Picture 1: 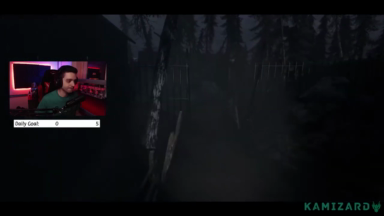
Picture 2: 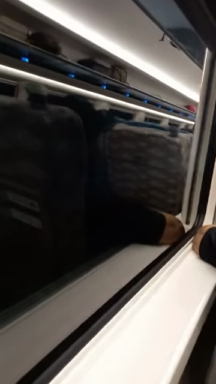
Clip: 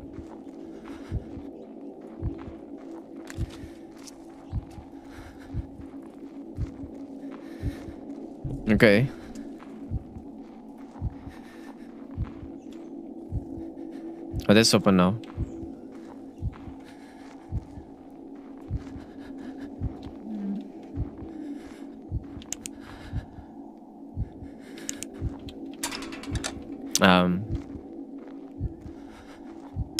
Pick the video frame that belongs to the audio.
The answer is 1